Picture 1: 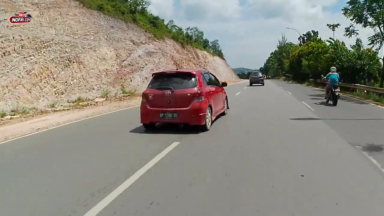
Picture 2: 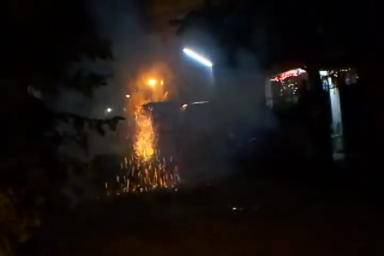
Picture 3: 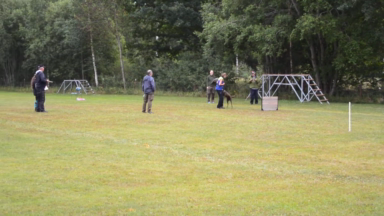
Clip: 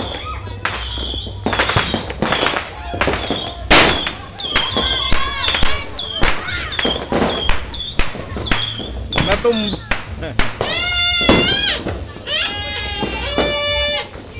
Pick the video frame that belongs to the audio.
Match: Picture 2